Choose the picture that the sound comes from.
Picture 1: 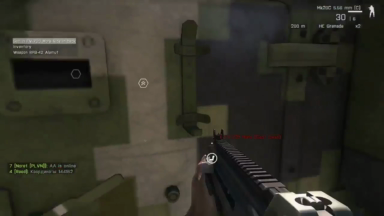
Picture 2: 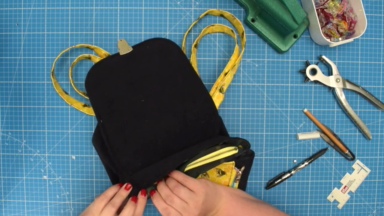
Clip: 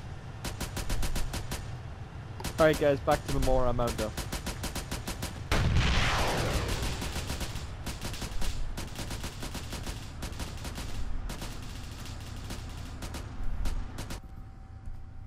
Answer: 1